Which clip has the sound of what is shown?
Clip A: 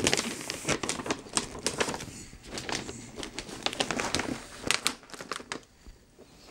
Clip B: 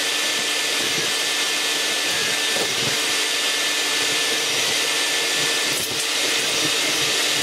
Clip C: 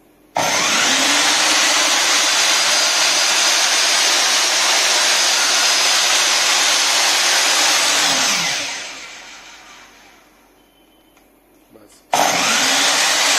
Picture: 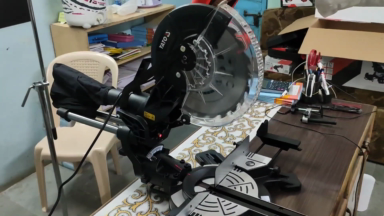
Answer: C